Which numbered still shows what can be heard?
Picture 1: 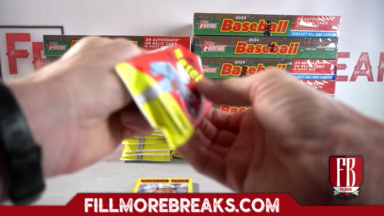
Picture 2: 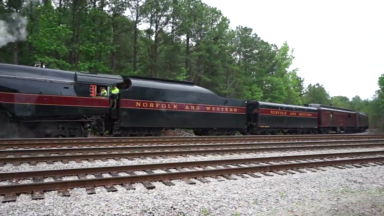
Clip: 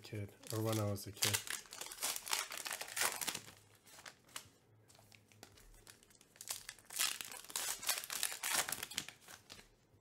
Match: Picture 1